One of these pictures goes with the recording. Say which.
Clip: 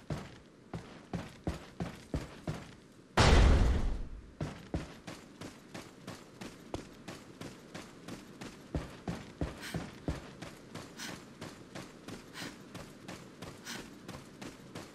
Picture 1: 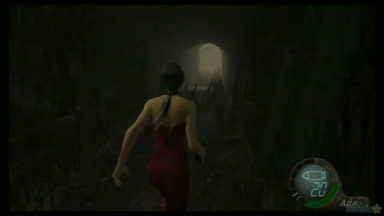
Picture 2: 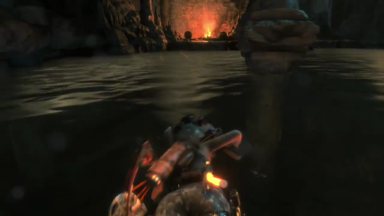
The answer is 1